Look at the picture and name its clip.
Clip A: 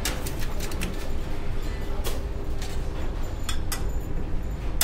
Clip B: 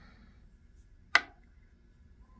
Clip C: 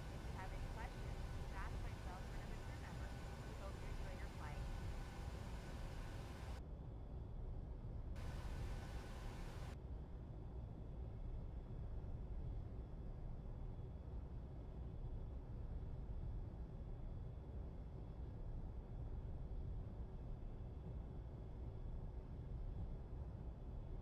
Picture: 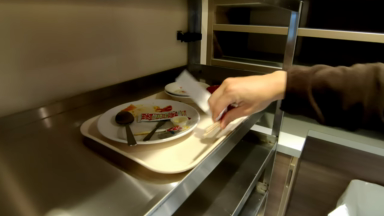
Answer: A